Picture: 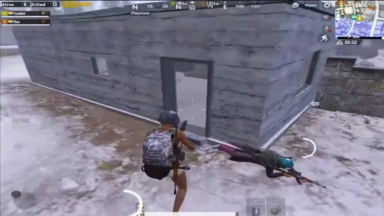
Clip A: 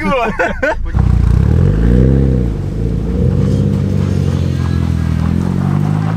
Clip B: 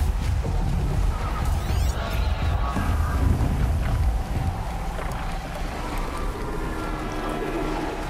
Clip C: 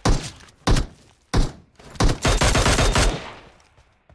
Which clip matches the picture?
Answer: C